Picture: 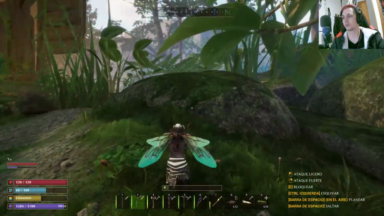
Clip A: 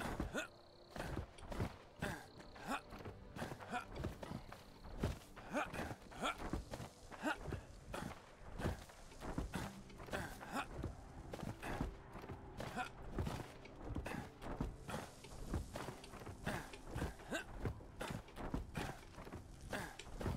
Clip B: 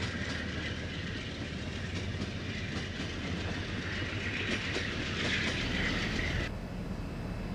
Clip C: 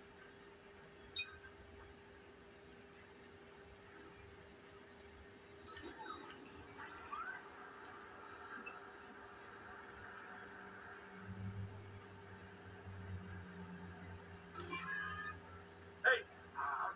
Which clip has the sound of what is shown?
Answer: A